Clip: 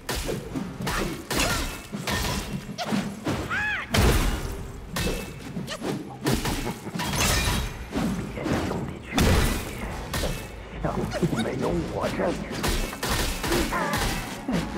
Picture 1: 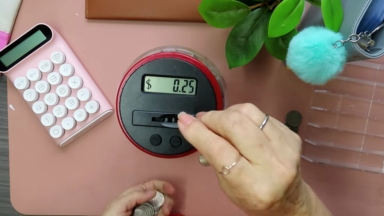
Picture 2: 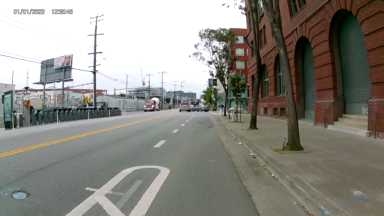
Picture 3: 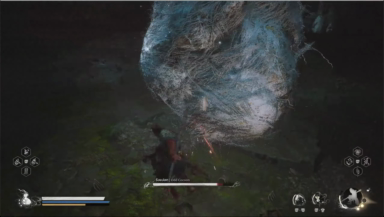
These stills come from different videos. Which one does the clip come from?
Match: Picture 3